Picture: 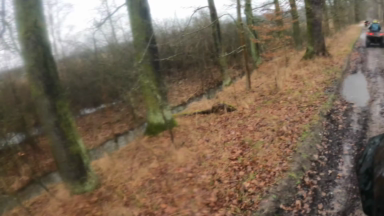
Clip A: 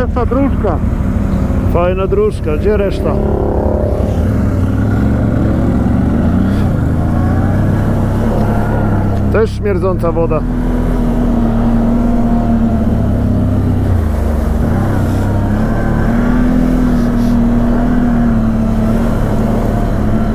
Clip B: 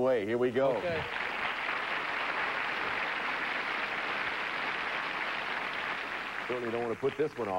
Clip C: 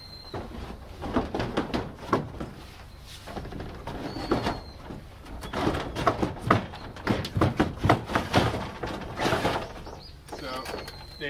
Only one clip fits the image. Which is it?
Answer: A